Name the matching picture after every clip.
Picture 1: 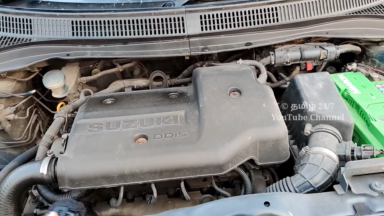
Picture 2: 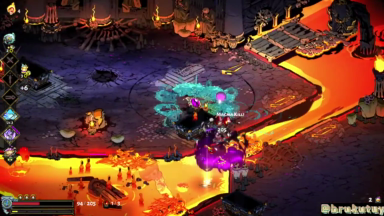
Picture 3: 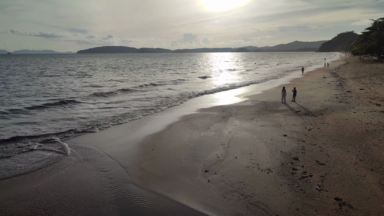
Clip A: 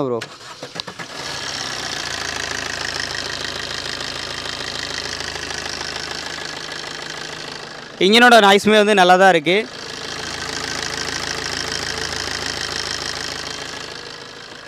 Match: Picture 1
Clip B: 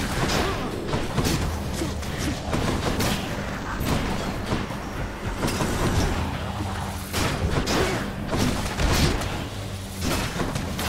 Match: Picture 2